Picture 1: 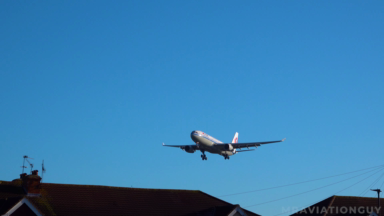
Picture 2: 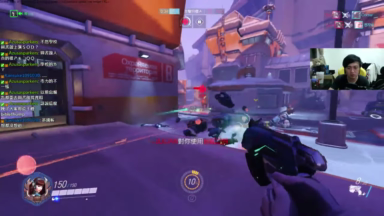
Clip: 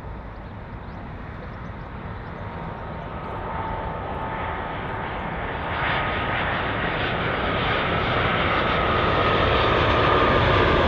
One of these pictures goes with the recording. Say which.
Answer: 1